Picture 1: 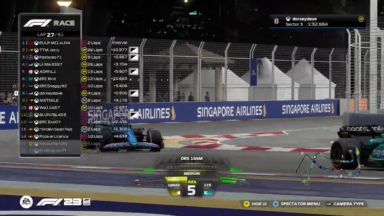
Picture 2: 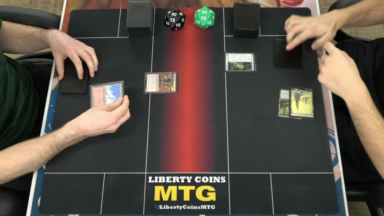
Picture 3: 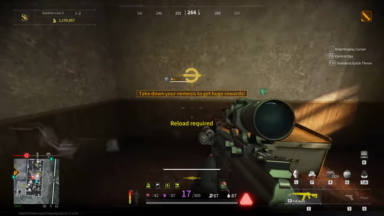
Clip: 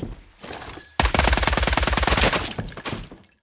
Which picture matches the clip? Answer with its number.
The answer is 3